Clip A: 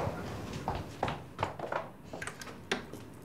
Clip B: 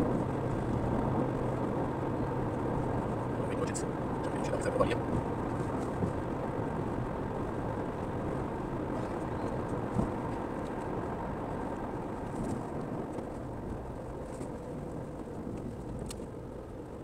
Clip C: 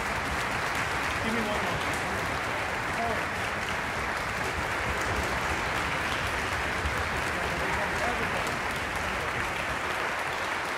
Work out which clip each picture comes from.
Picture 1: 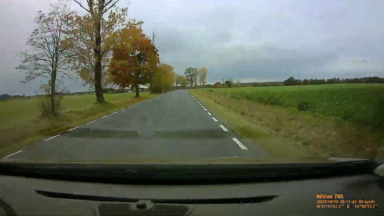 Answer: B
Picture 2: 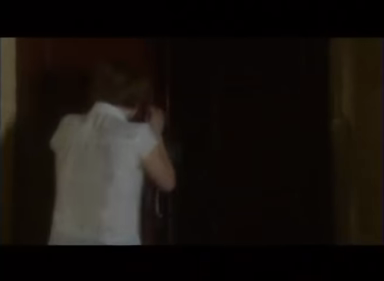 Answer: A